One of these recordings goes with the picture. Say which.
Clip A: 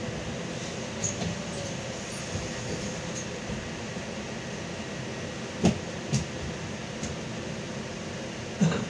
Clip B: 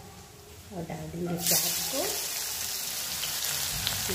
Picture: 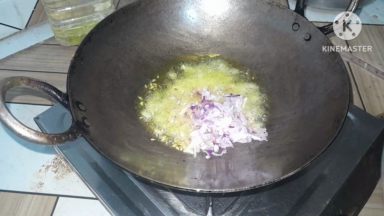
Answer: B